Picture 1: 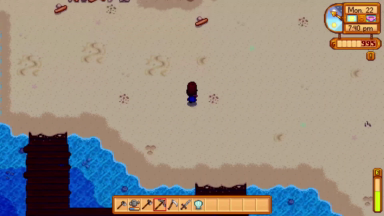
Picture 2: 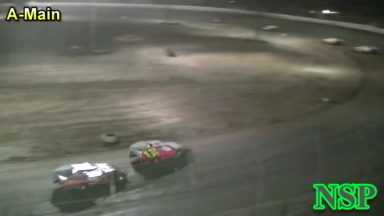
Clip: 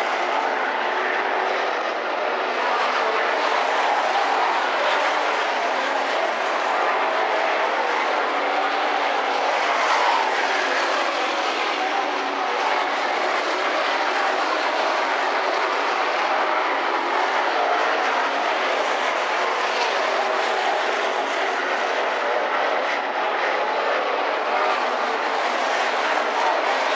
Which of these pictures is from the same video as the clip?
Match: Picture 2